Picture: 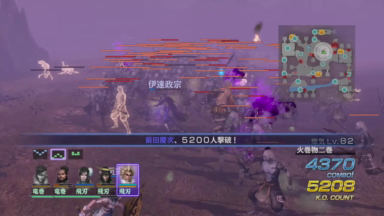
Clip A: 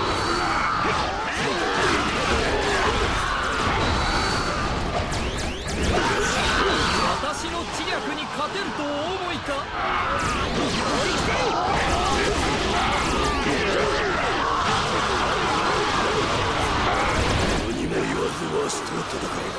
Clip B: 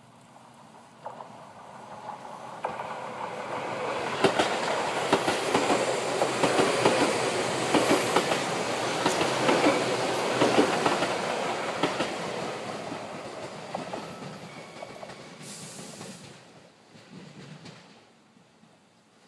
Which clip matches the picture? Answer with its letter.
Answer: A